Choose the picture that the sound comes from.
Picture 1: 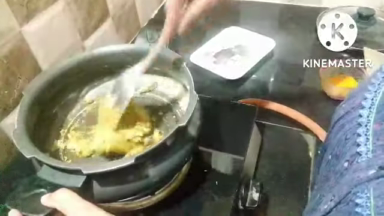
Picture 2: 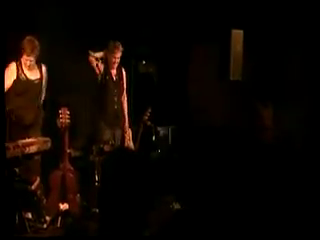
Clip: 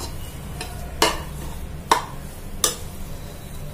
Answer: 1